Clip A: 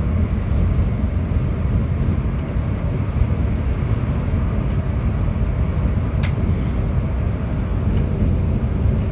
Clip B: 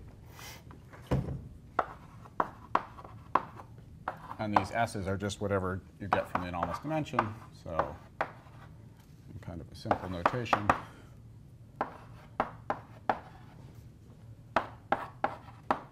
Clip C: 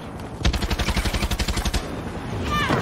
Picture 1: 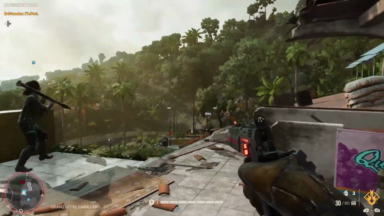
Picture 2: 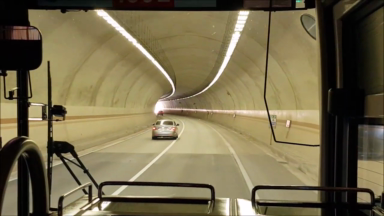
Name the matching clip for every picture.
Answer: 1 C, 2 A